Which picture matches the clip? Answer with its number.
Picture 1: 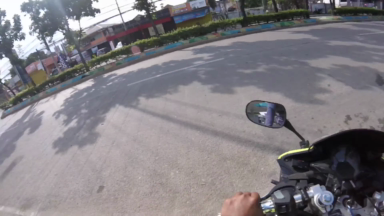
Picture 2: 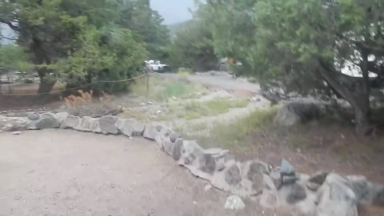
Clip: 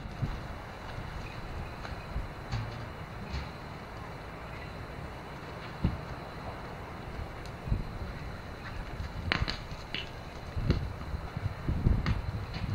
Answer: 2